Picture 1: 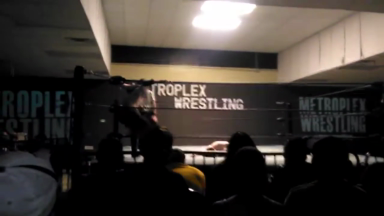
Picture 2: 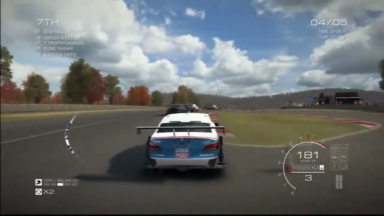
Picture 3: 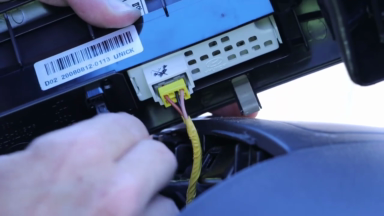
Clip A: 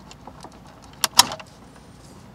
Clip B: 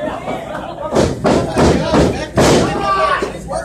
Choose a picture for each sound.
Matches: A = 3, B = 1